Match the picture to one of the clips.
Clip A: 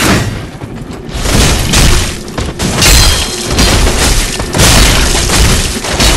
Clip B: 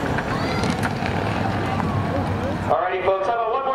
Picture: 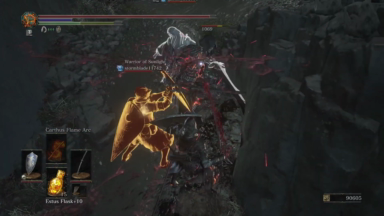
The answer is A